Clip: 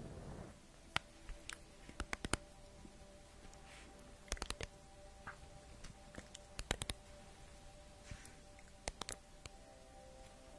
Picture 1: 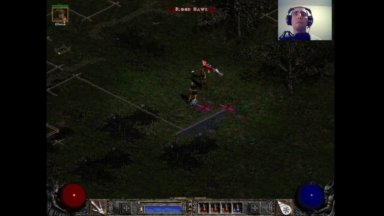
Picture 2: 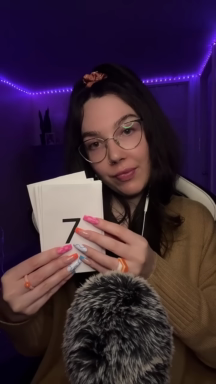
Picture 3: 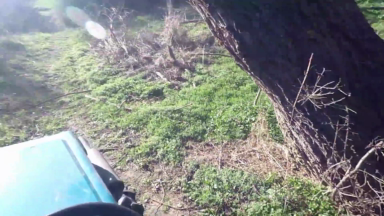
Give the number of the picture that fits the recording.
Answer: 2